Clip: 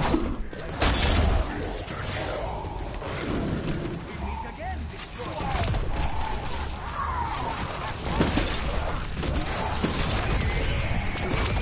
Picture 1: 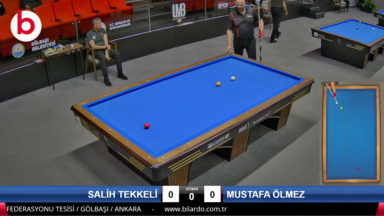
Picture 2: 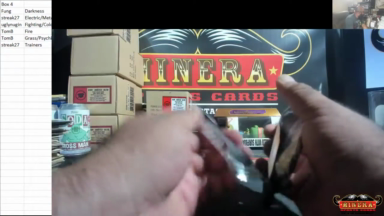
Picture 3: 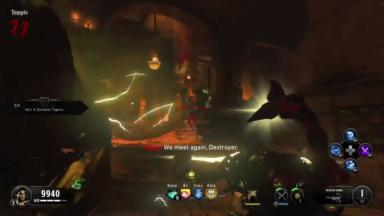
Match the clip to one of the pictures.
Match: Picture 3